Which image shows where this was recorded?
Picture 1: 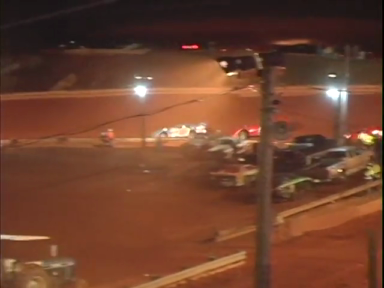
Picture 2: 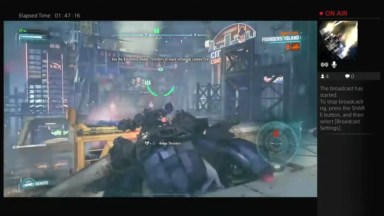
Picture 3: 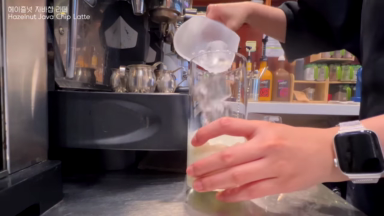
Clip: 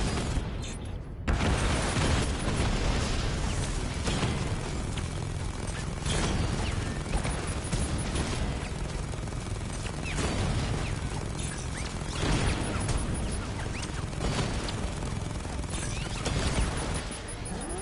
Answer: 2